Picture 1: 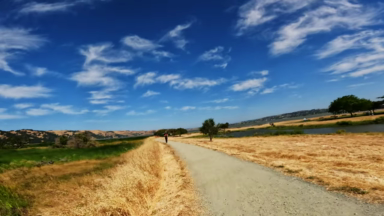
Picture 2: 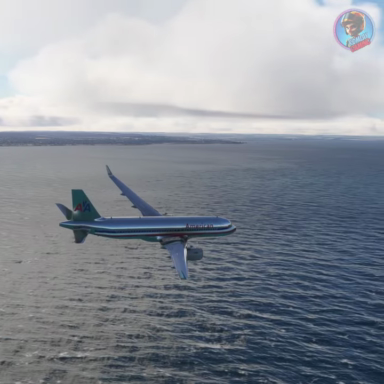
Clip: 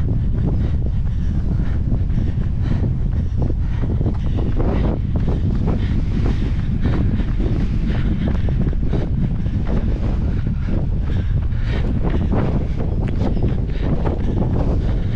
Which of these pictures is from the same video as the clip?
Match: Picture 1